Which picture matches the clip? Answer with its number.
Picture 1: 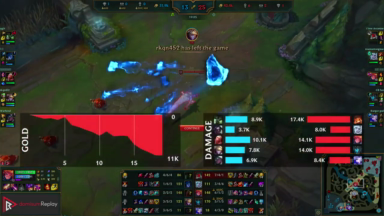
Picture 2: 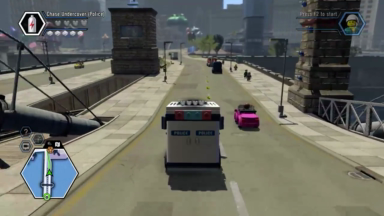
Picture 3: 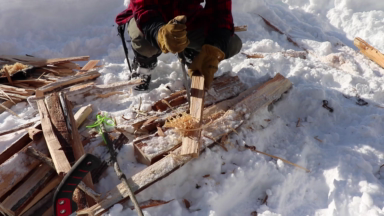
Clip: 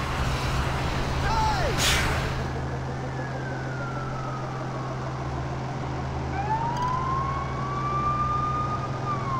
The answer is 2